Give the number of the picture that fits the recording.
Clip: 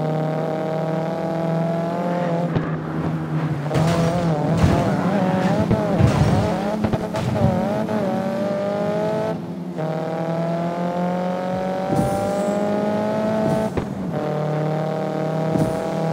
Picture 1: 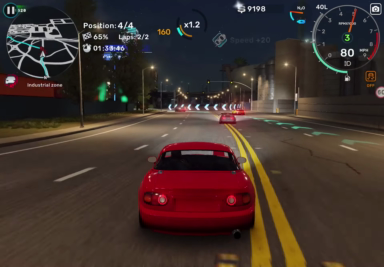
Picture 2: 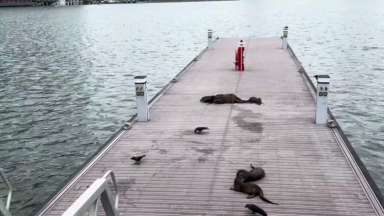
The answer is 1